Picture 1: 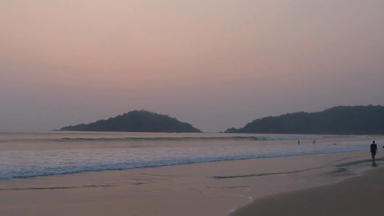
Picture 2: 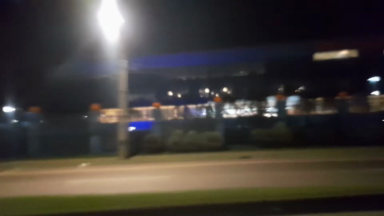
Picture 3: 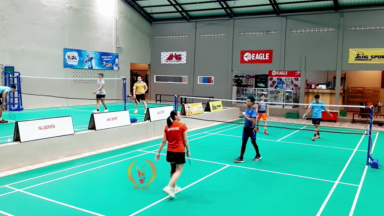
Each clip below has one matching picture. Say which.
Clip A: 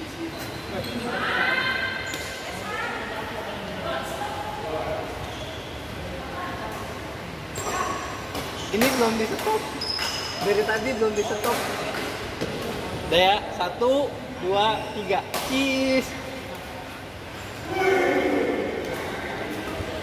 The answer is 3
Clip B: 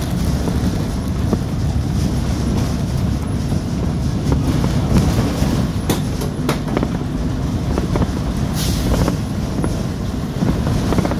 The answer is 2